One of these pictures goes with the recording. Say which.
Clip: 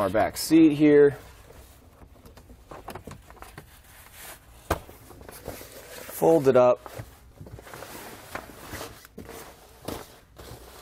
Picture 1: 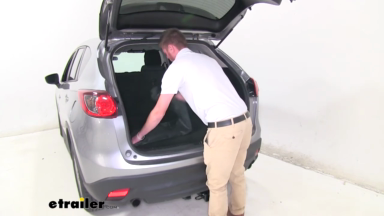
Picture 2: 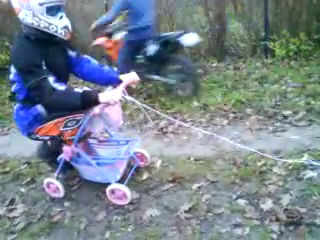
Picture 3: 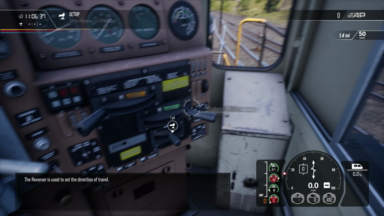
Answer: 1